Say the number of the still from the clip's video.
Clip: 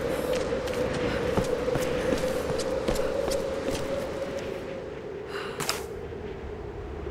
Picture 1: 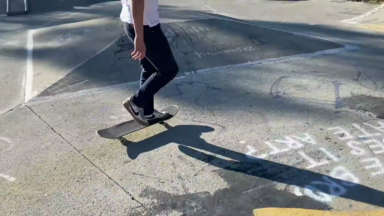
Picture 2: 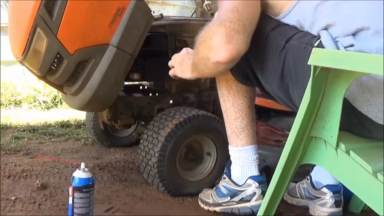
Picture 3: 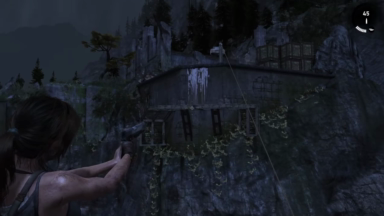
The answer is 3